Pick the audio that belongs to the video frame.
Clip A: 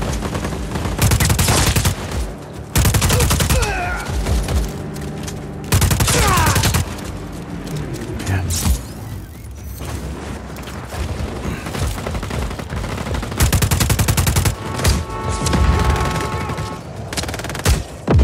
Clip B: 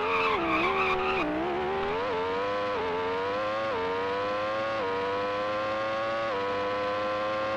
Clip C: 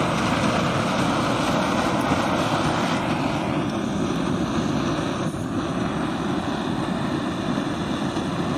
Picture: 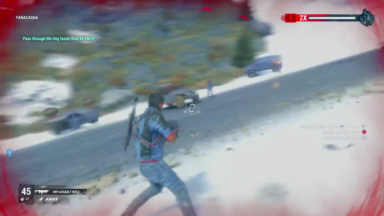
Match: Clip A